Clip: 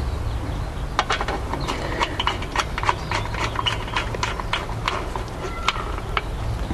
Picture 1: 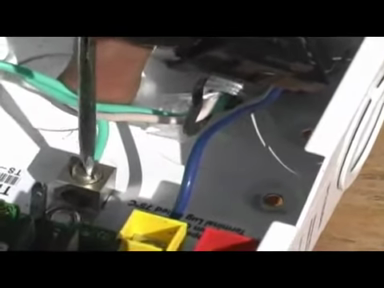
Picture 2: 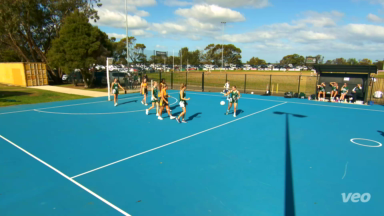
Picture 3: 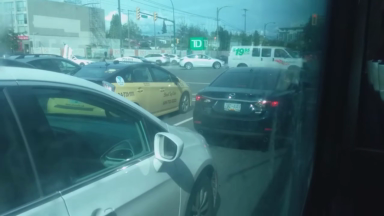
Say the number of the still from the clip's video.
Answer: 1